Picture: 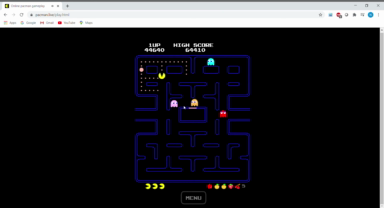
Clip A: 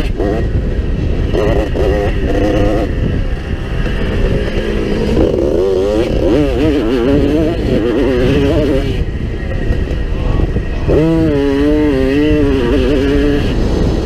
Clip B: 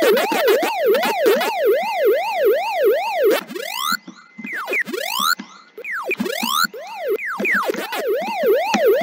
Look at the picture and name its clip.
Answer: B